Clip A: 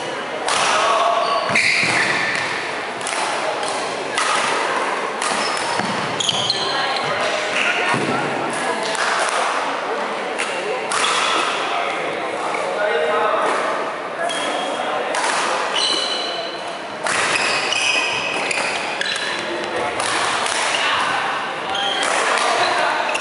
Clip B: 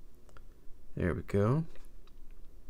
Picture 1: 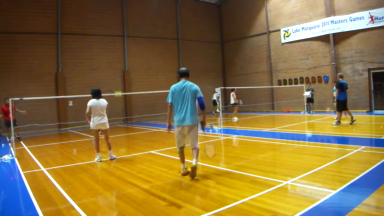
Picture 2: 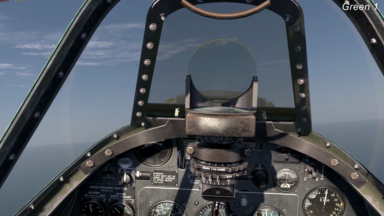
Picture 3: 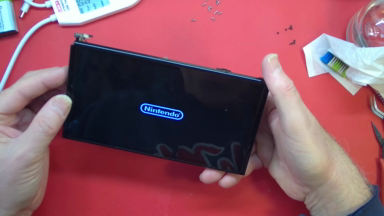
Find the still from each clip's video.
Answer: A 1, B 3